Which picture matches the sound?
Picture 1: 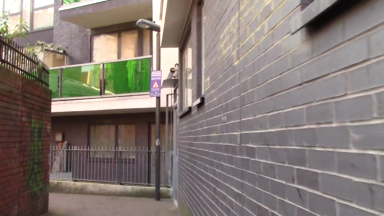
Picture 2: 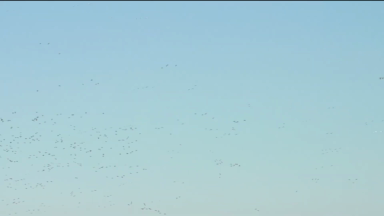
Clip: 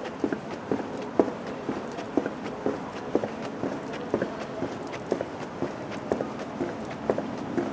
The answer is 1